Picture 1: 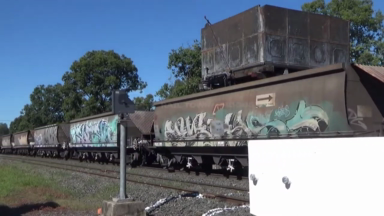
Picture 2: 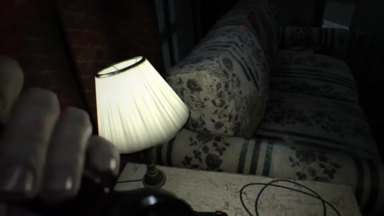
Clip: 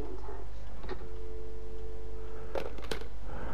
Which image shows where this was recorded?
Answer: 2